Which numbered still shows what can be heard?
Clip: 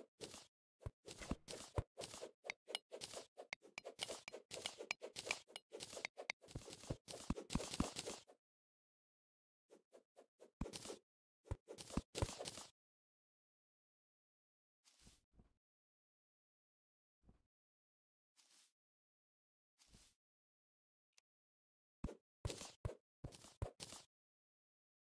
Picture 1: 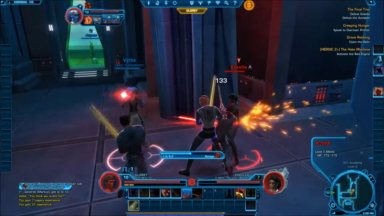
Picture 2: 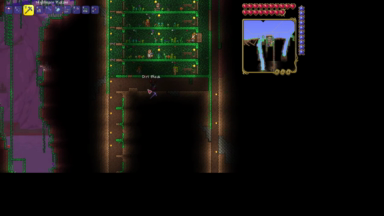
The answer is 2